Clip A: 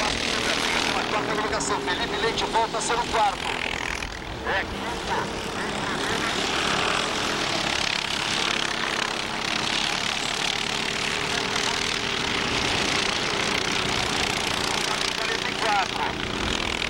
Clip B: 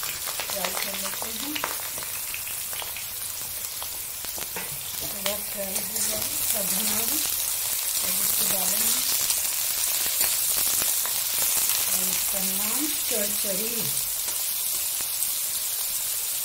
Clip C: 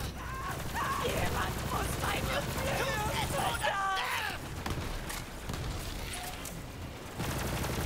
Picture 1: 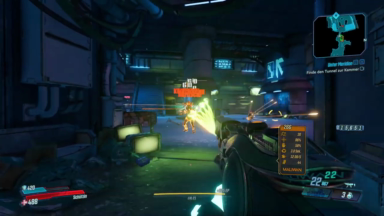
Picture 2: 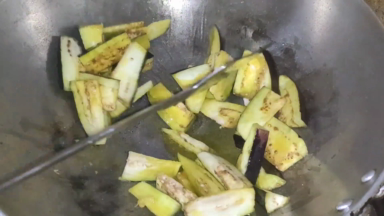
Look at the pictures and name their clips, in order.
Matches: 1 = C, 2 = B